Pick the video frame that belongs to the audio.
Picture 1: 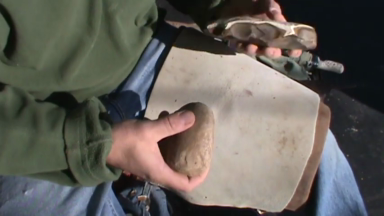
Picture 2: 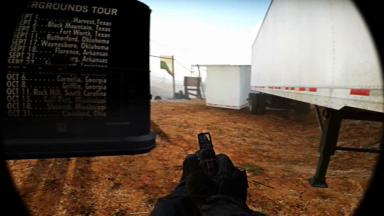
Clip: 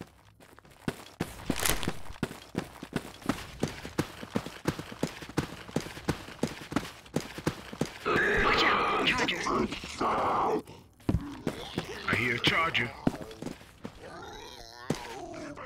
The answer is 2